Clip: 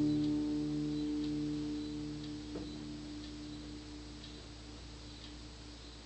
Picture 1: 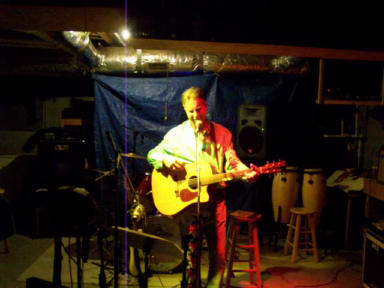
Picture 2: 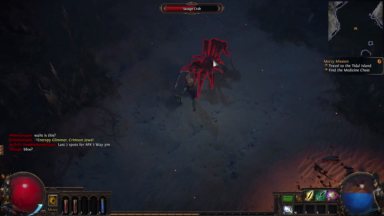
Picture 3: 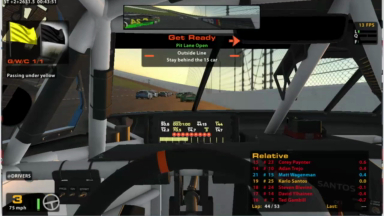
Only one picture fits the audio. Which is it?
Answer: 1